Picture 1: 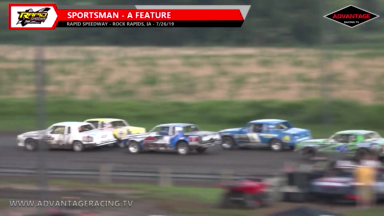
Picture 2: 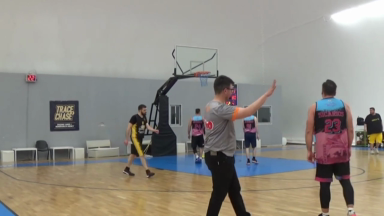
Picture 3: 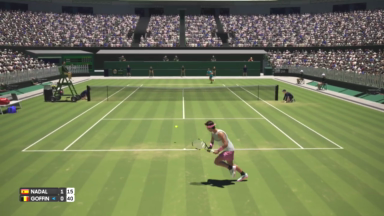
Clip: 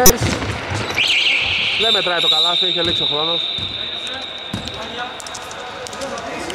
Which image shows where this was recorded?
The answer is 2